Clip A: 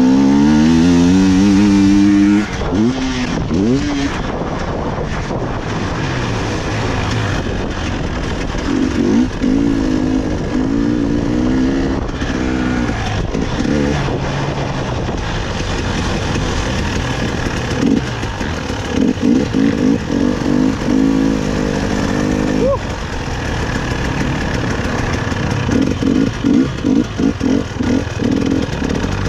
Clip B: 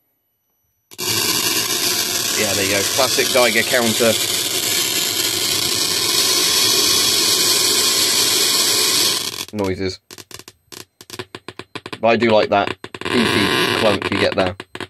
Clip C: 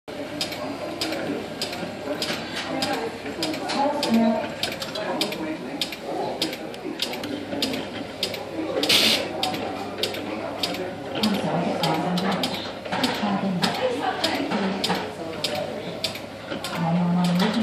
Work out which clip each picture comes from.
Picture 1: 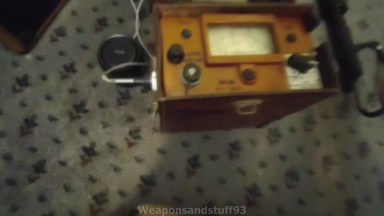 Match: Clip B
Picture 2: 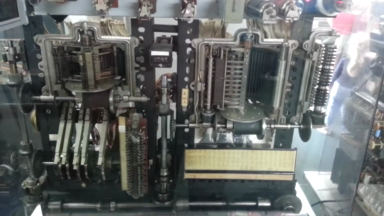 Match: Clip C